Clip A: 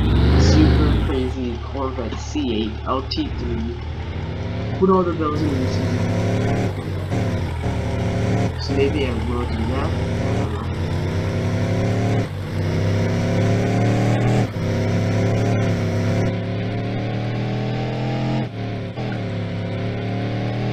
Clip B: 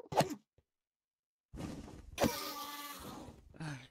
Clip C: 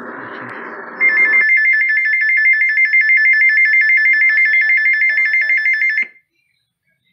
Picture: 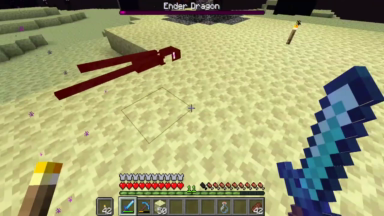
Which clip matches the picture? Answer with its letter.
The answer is B